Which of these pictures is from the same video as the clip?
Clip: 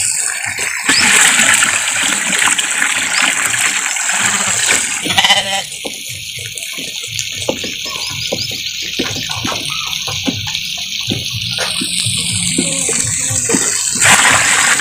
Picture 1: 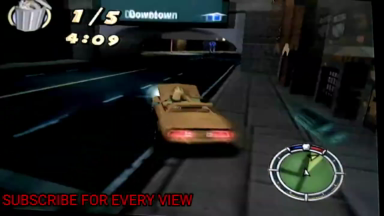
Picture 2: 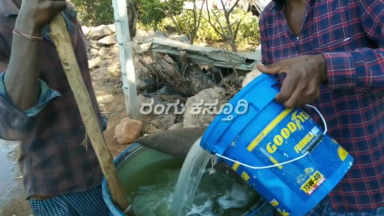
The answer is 2